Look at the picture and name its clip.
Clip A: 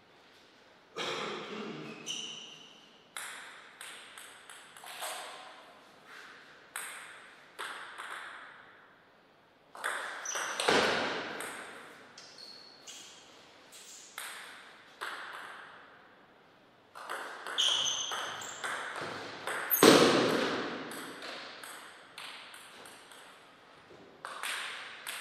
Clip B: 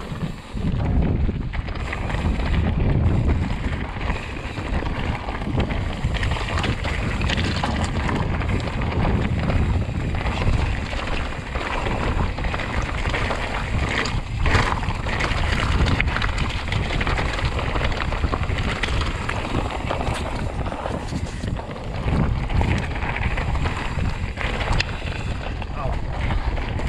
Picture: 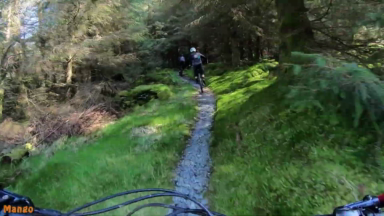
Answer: B